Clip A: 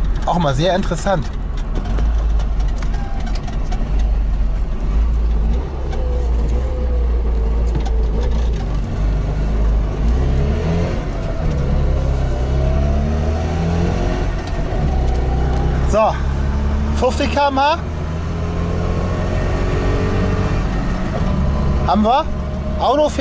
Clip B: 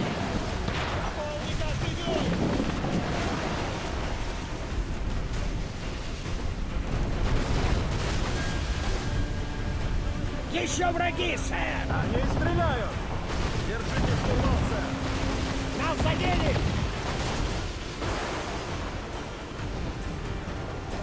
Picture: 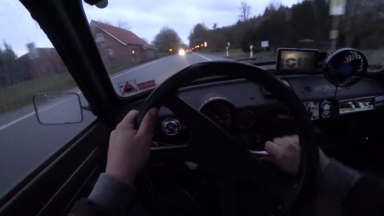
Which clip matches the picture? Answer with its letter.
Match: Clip A